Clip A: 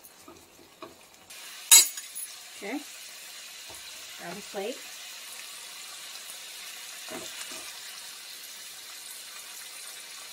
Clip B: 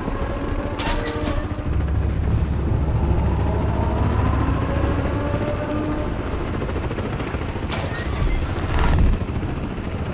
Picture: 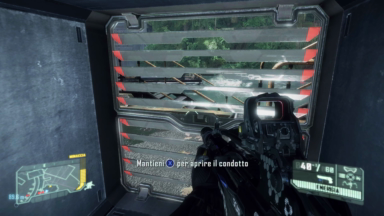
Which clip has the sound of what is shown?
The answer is B